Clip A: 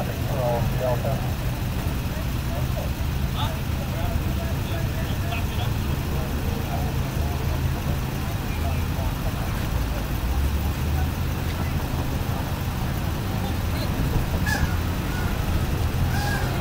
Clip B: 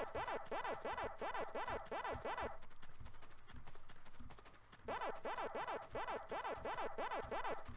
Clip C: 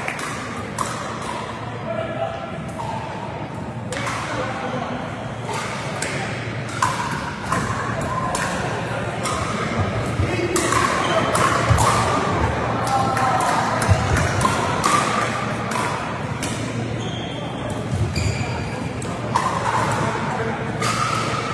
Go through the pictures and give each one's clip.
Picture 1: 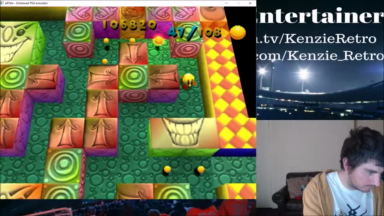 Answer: B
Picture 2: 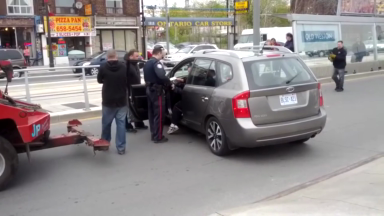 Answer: A